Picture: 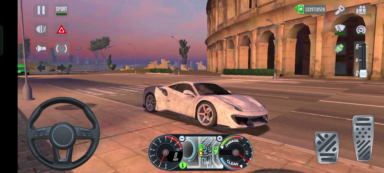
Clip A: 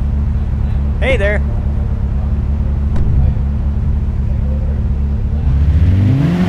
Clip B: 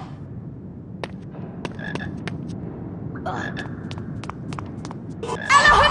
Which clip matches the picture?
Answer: A